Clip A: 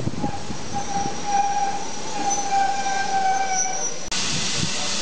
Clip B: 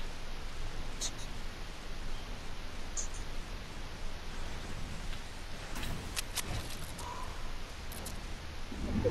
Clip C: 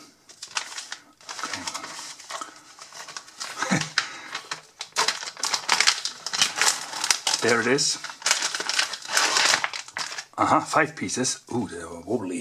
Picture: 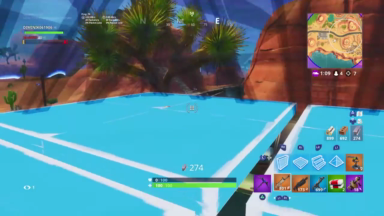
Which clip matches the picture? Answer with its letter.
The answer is B